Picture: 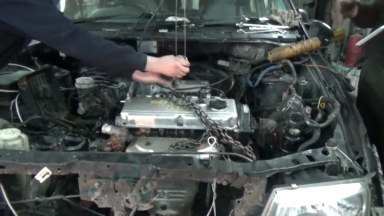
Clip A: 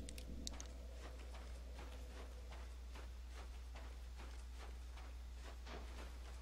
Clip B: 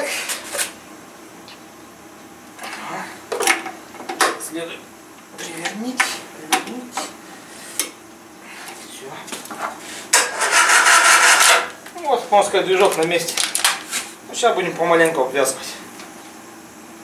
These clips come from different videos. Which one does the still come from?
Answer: B